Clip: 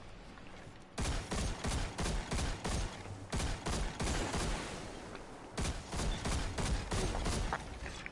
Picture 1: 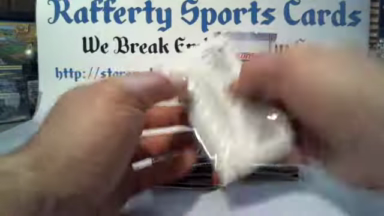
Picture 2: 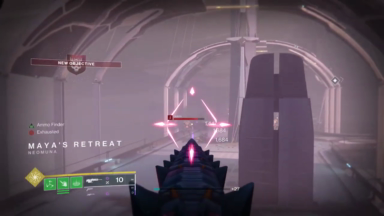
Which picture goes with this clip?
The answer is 2